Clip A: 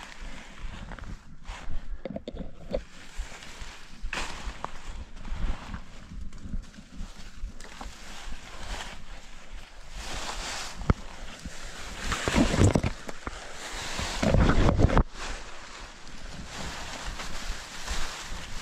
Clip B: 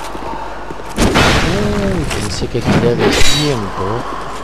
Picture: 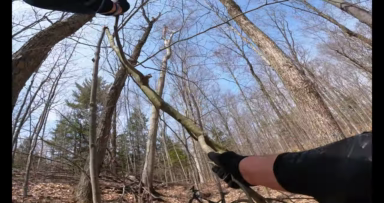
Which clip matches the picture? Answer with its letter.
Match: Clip A